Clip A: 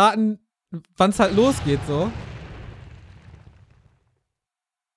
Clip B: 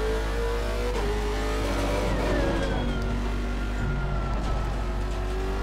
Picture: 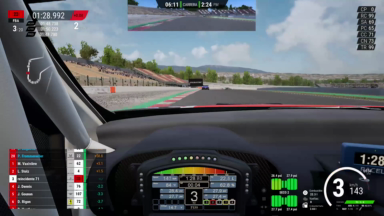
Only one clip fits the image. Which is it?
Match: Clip B